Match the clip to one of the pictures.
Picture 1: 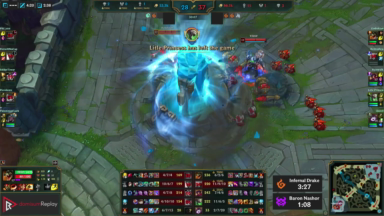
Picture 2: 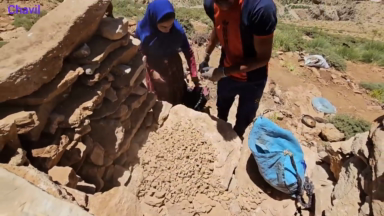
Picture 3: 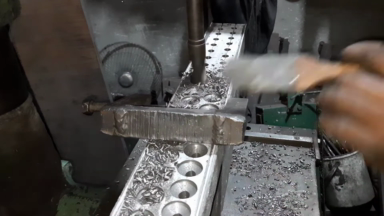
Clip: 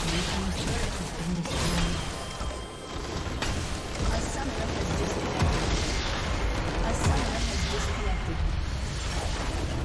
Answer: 1